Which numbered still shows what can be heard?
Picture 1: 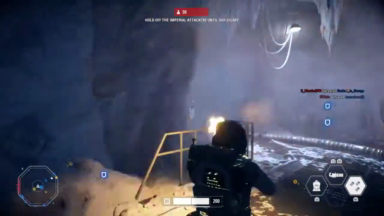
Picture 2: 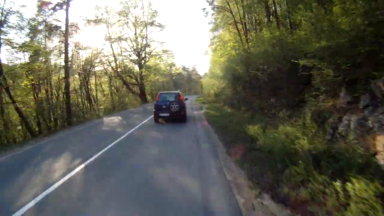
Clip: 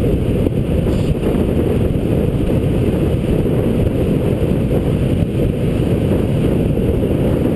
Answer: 2